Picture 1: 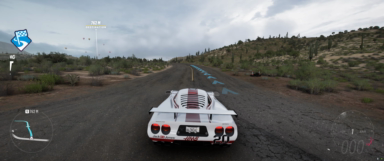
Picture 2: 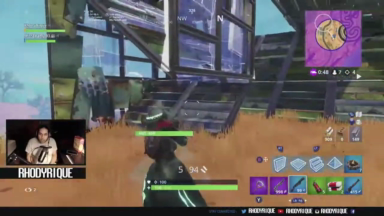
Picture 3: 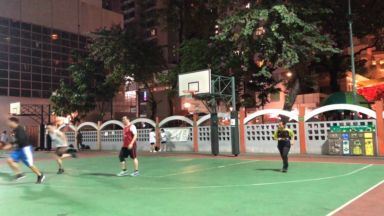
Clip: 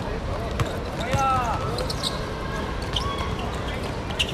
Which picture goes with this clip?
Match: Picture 3